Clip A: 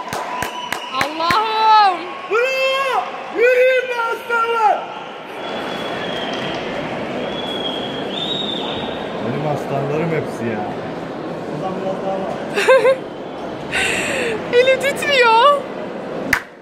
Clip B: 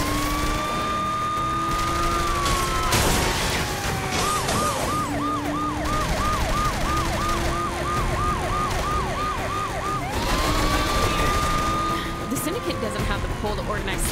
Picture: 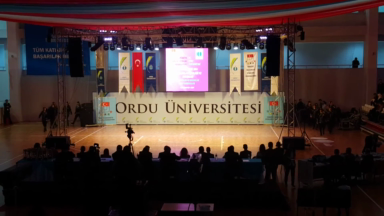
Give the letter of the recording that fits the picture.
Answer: A